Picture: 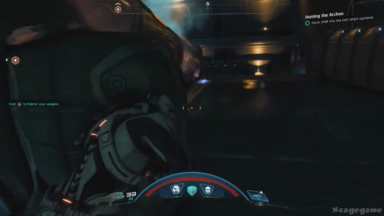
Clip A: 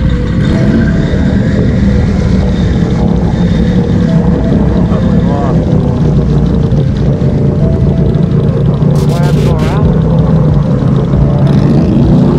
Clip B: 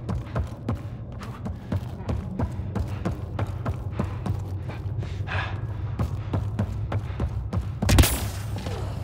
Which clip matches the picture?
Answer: B